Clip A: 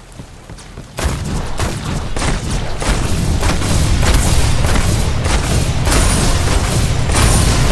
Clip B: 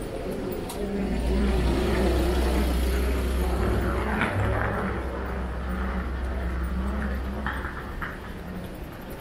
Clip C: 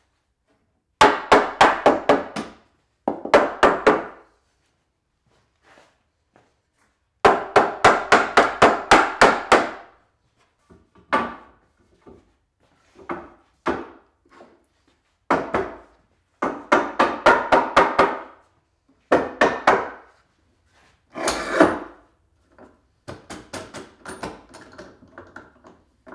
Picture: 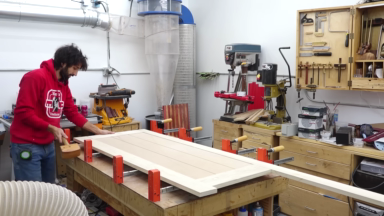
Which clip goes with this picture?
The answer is C